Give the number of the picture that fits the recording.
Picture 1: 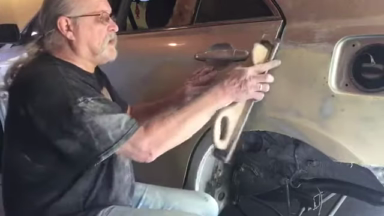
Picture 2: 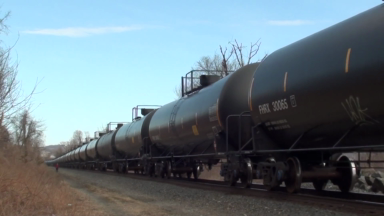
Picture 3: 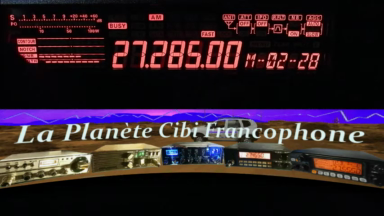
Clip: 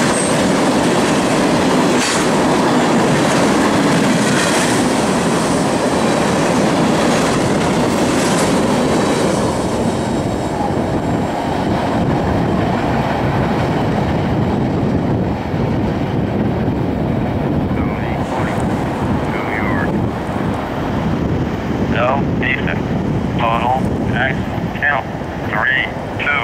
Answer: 2